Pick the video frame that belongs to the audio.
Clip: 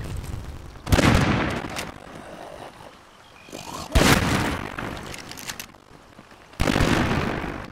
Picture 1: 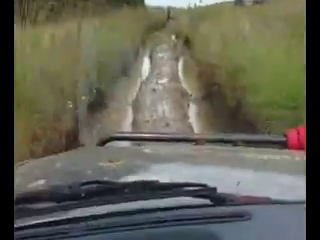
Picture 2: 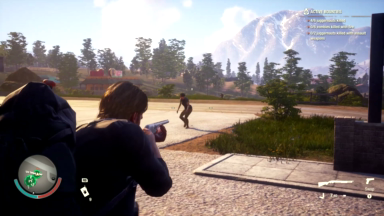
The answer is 2